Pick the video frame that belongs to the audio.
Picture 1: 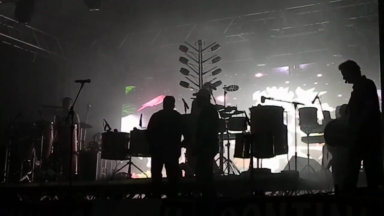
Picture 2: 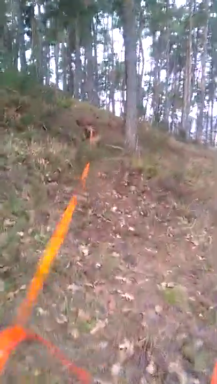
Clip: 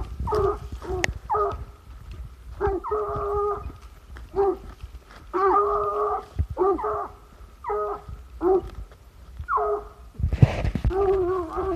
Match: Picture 2